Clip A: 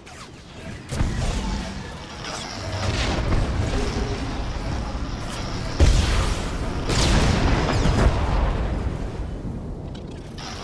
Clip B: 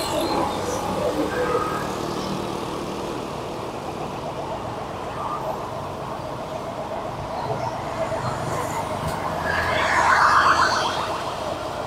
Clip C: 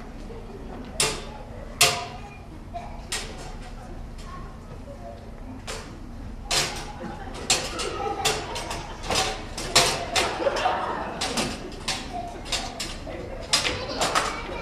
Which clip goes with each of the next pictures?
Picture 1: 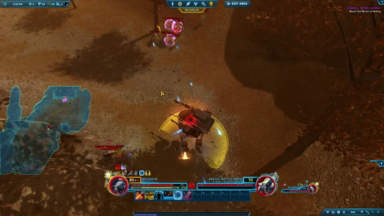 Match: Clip A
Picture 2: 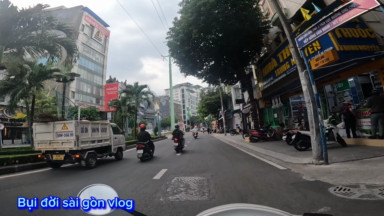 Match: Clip B